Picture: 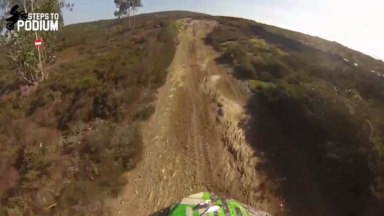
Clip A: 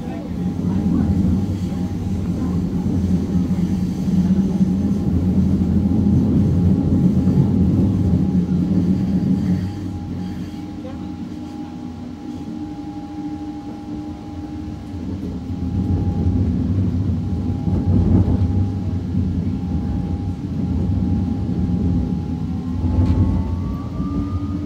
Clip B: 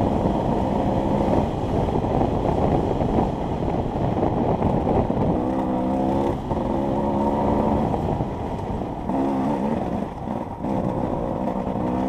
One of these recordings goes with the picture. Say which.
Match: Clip B